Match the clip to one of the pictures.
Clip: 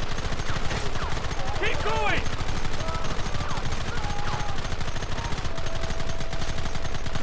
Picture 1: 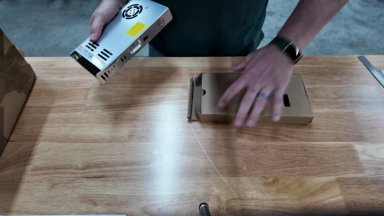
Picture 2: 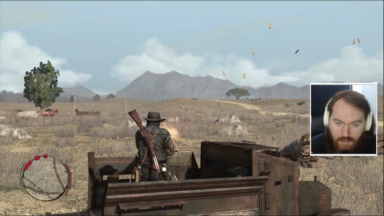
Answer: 2